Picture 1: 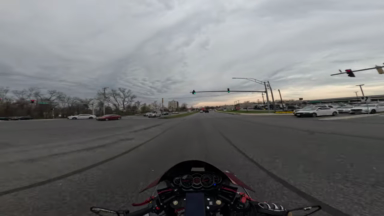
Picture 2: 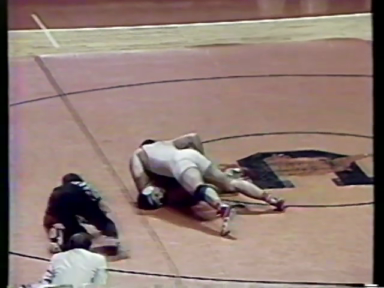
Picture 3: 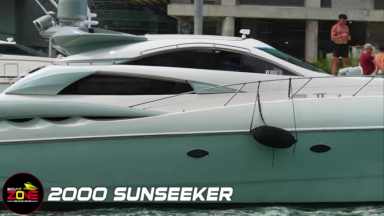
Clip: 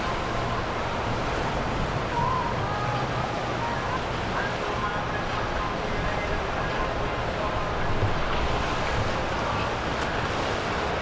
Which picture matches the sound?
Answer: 3